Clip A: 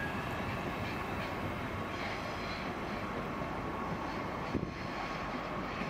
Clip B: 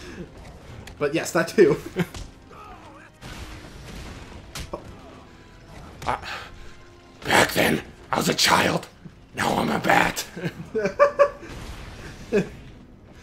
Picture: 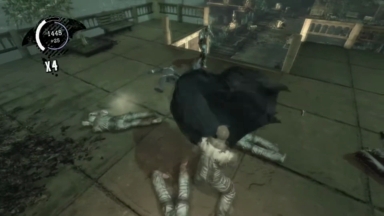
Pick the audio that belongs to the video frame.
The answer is B